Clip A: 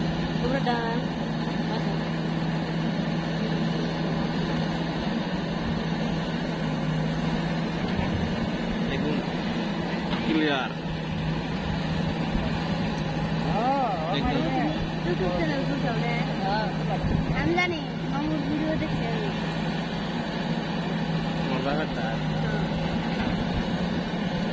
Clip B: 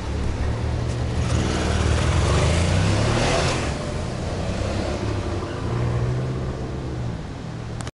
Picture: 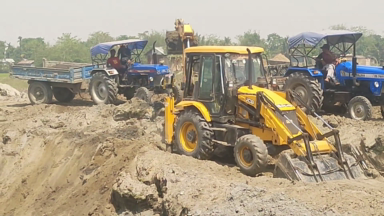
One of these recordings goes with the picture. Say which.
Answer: A